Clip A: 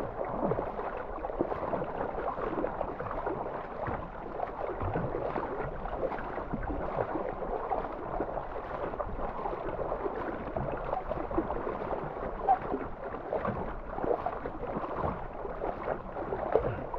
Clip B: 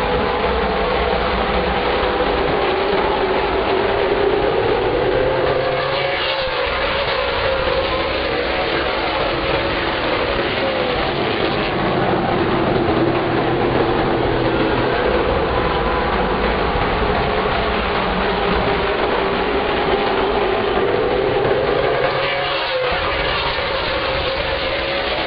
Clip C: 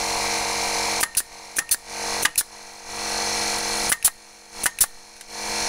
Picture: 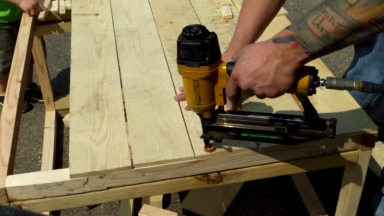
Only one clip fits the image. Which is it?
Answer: C